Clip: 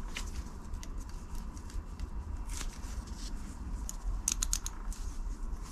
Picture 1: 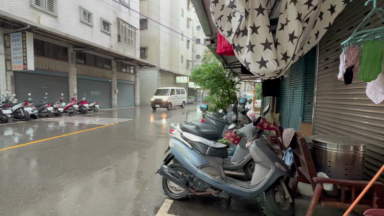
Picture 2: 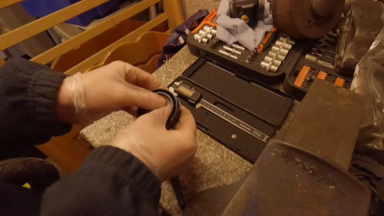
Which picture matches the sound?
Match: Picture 2